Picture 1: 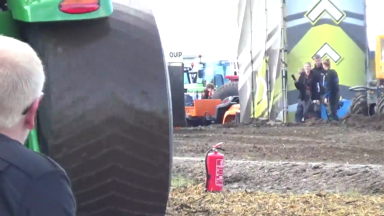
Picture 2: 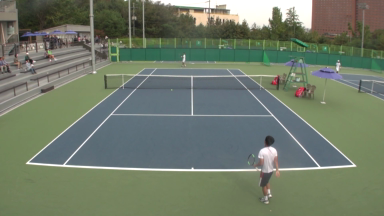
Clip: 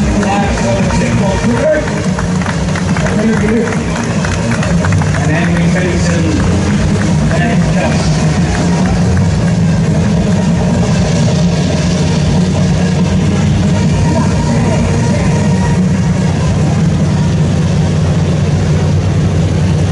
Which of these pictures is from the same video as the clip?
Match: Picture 1